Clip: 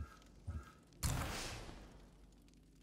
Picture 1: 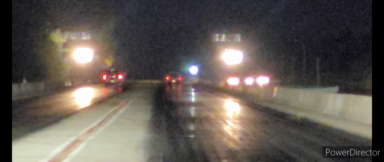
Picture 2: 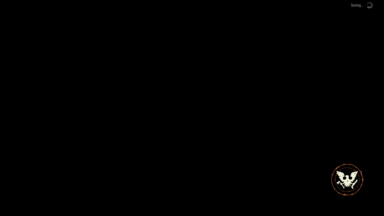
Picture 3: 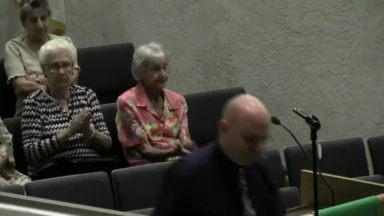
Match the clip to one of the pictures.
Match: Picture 2